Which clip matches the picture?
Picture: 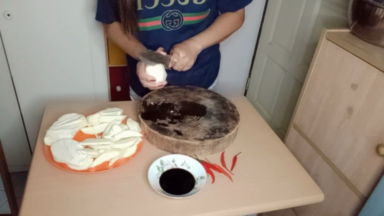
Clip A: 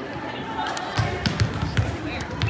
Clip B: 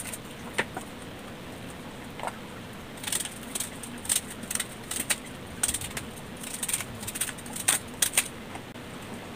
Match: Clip B